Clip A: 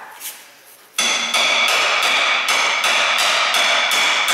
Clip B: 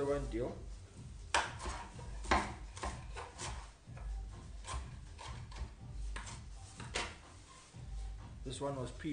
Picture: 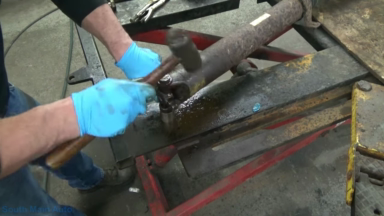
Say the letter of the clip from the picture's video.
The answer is A